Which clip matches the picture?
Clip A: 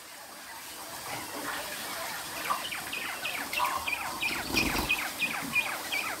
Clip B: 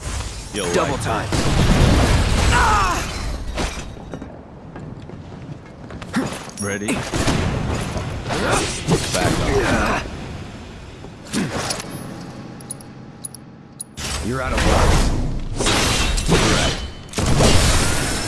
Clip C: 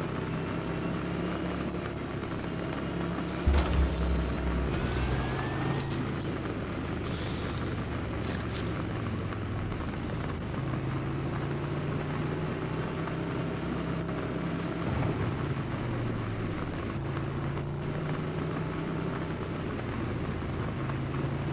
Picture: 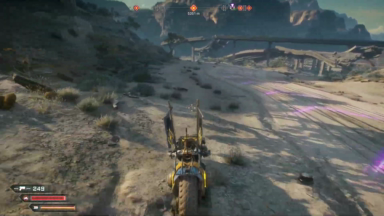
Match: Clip C